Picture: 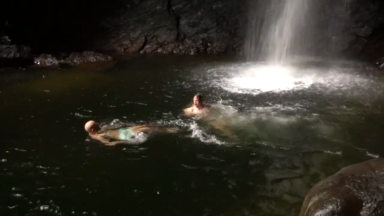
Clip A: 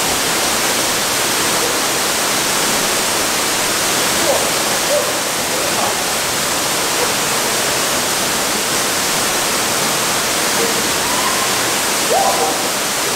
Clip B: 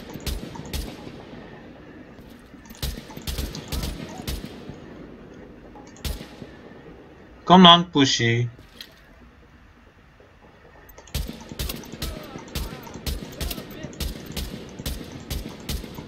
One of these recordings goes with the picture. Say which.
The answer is A